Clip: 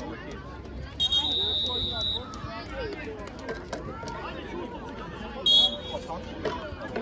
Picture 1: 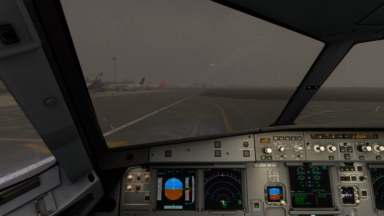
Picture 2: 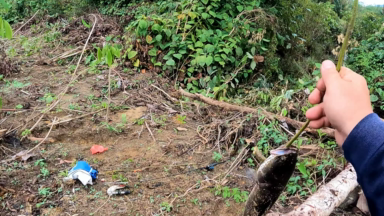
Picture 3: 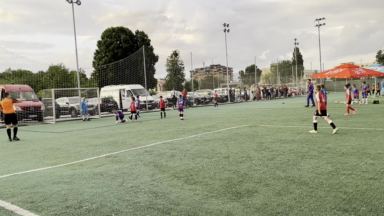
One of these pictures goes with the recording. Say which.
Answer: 3